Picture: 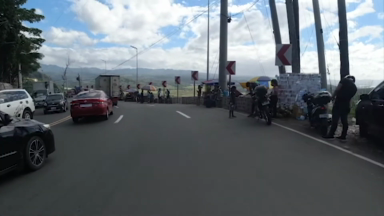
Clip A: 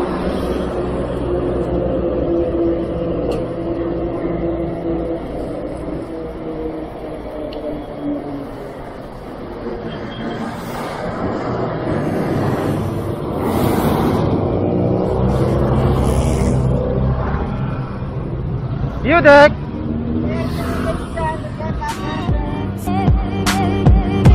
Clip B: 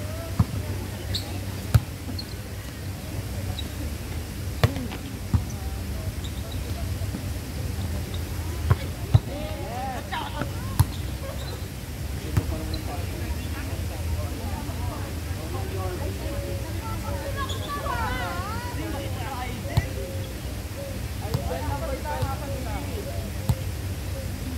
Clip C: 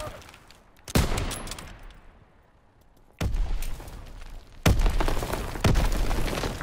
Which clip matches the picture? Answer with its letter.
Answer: A